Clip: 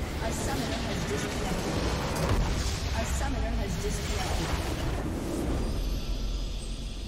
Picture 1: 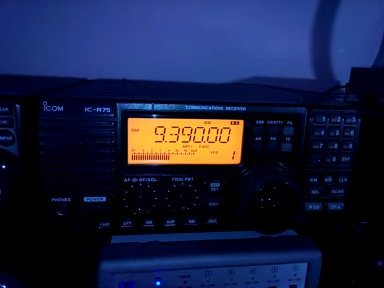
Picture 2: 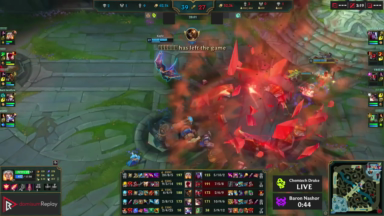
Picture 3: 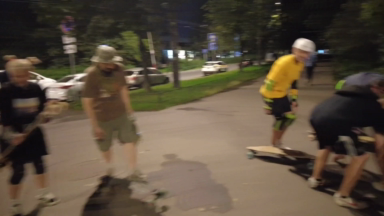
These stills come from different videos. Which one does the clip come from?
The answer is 2